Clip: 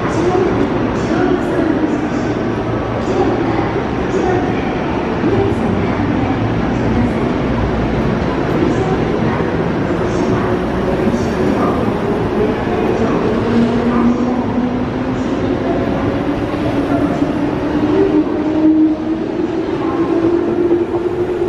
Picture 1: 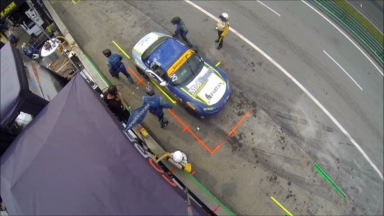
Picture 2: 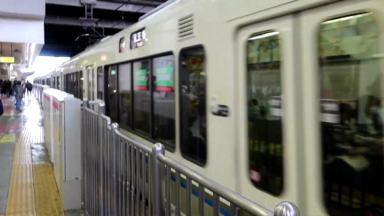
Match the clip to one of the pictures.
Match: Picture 2